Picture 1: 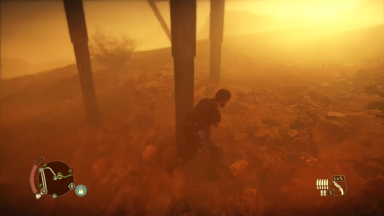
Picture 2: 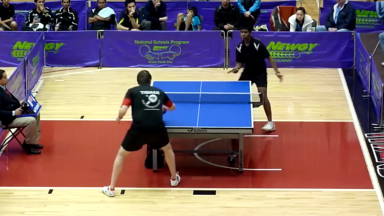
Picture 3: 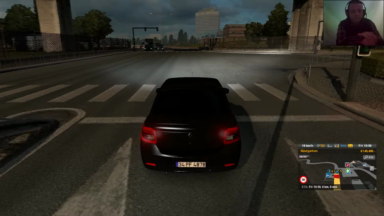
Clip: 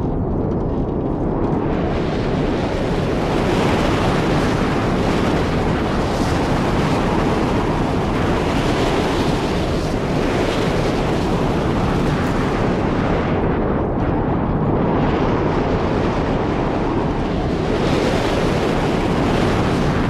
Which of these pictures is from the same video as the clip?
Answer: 1